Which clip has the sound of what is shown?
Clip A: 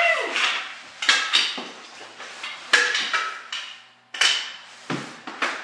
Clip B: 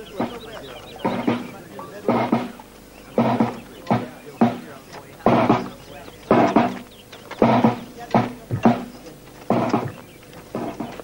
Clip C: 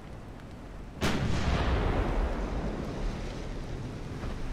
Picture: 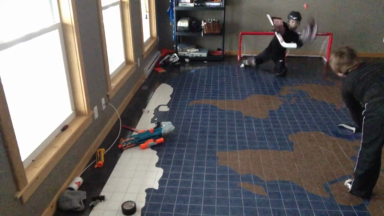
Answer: A